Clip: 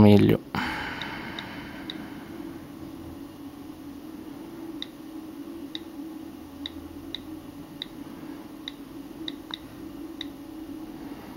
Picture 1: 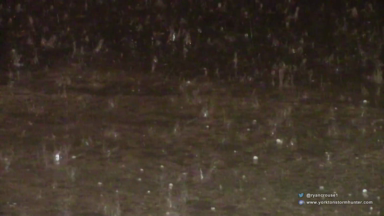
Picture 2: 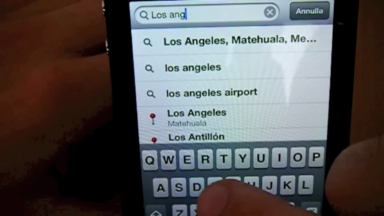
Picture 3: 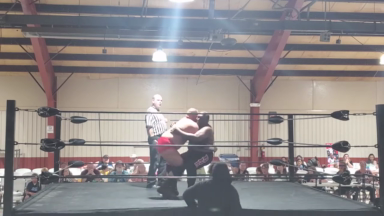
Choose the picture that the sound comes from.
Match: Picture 2